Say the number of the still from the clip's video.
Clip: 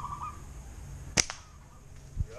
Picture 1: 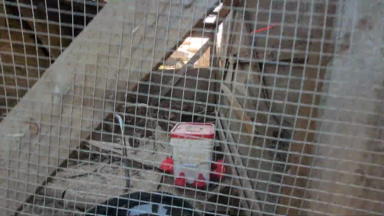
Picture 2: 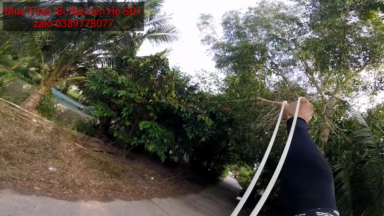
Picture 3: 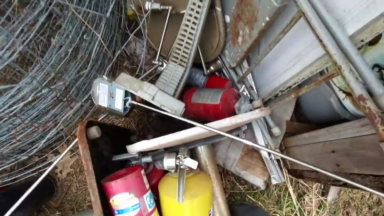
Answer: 2